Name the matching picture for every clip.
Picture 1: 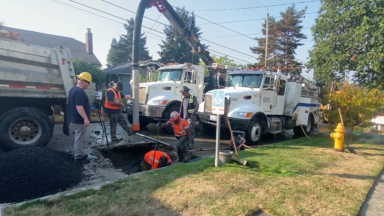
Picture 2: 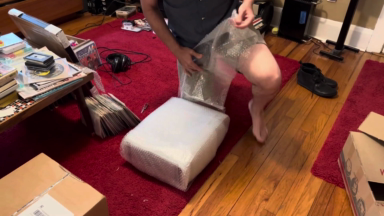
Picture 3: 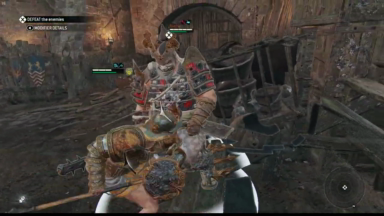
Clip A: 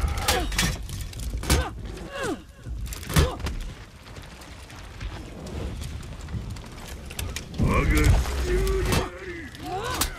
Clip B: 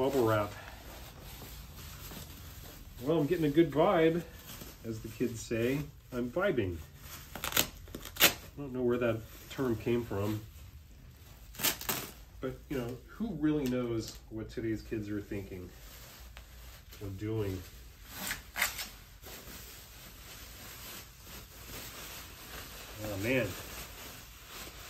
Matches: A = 3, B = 2